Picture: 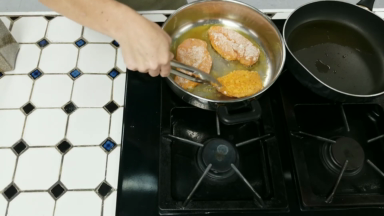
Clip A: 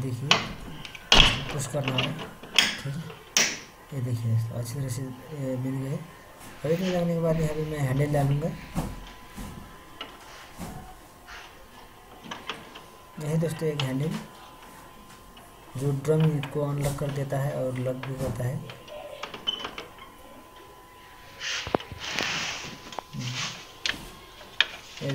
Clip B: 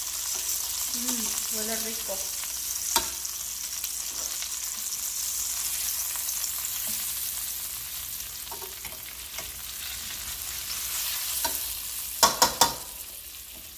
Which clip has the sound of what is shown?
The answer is B